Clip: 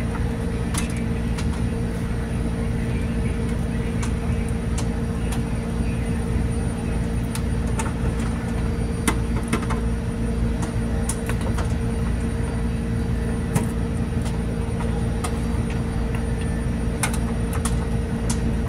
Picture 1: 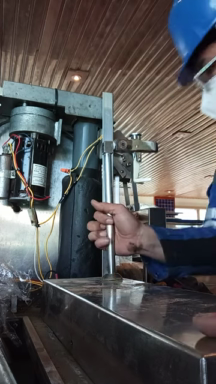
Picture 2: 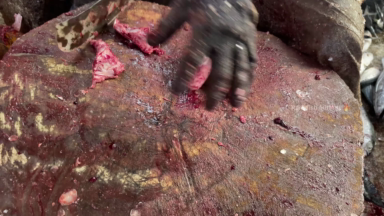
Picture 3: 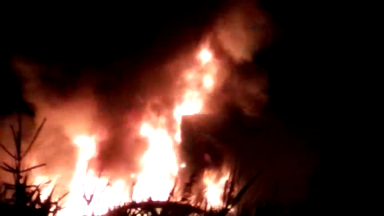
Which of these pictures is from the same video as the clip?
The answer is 1